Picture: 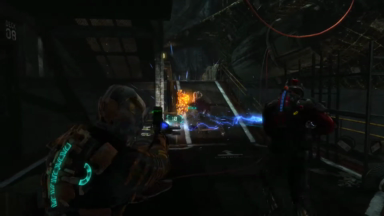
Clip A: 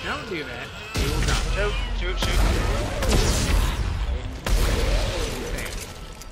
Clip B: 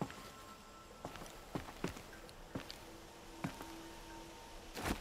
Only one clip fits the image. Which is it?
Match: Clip A